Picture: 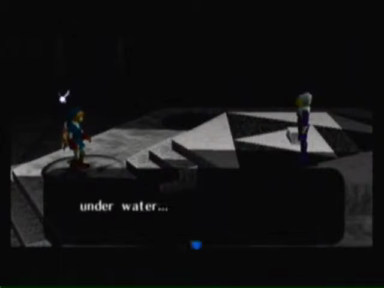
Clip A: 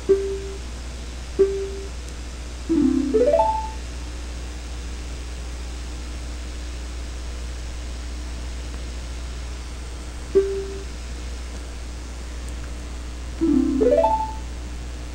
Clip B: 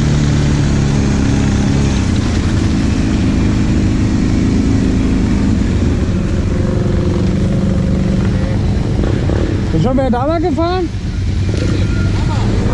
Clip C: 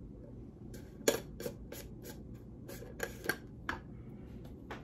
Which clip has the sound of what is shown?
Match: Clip A